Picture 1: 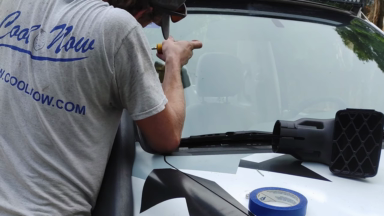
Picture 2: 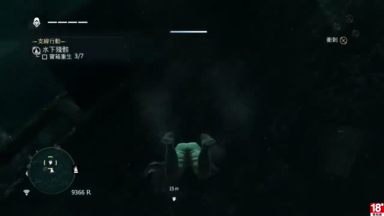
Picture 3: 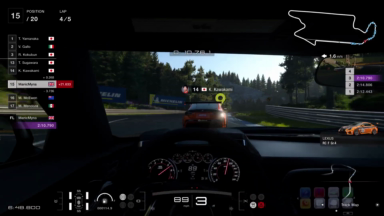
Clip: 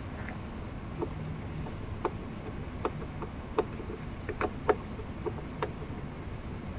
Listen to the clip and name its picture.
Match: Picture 1